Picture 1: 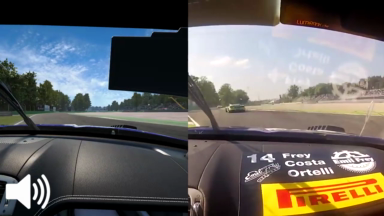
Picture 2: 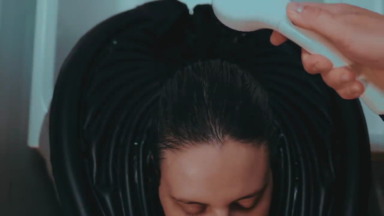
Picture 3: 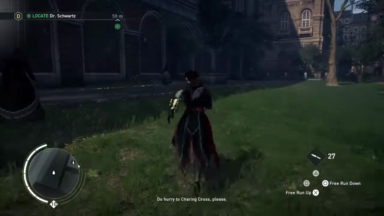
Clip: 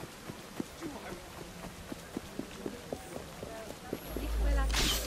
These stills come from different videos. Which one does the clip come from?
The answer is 3